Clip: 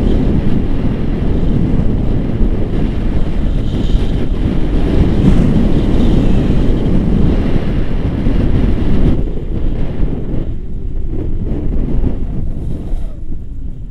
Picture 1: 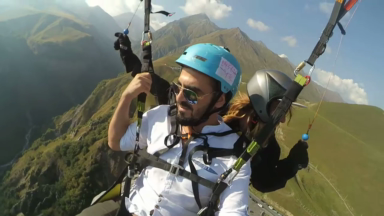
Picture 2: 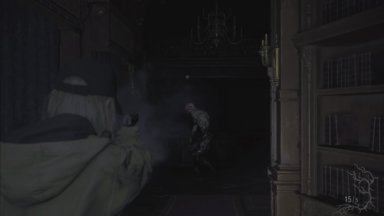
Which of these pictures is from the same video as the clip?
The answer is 1